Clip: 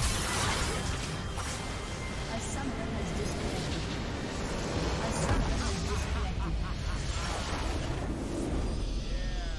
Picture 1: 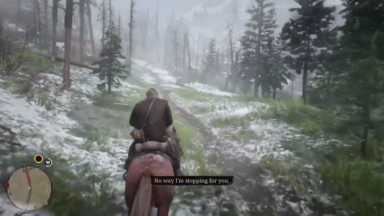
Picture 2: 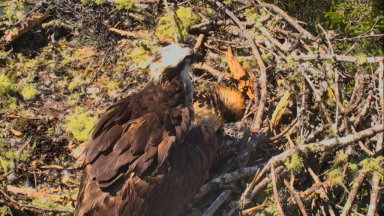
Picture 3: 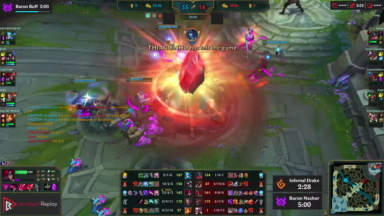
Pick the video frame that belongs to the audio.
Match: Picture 3